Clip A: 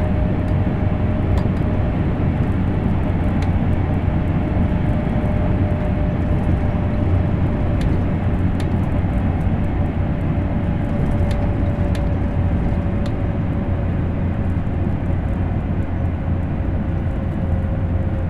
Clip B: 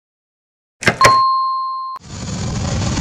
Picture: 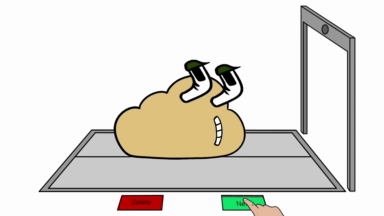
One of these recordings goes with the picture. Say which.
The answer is B